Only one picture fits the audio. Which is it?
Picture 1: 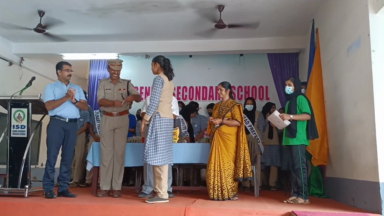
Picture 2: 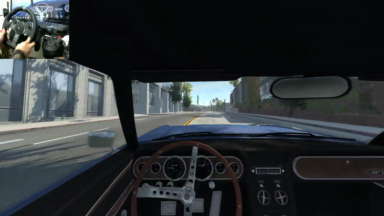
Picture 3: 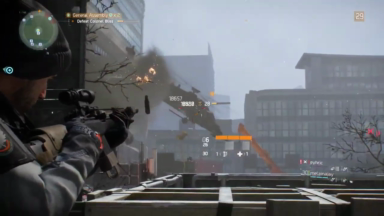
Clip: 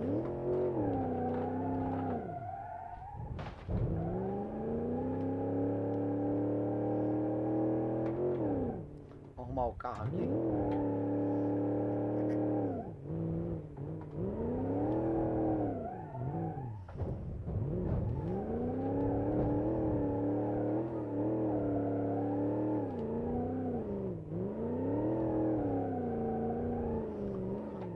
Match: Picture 2